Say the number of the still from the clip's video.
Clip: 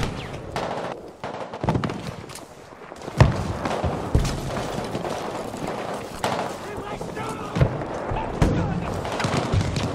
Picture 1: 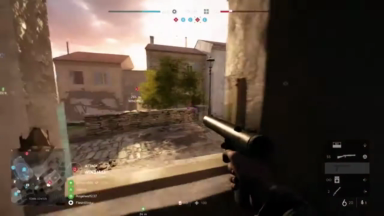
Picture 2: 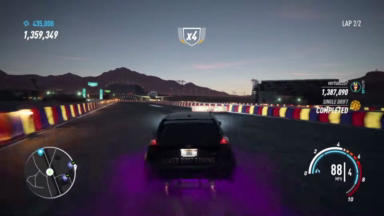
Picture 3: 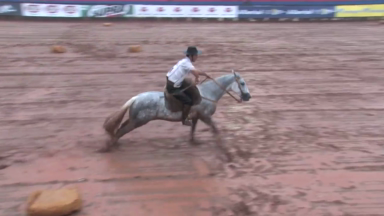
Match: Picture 1